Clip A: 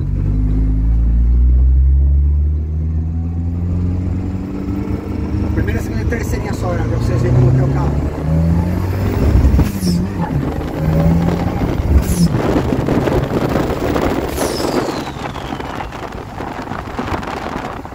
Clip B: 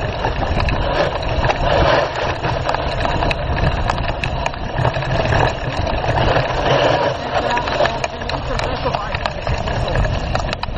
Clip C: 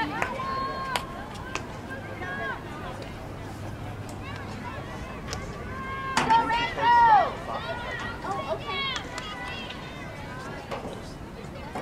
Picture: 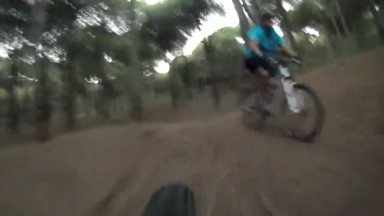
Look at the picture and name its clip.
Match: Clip B